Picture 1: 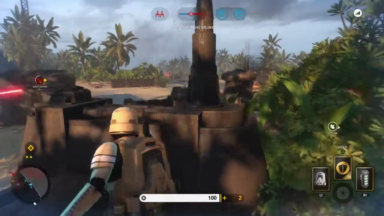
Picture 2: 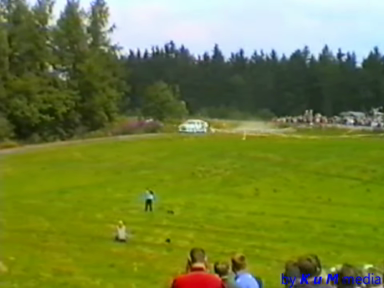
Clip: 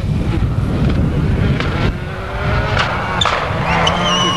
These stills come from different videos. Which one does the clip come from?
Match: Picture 2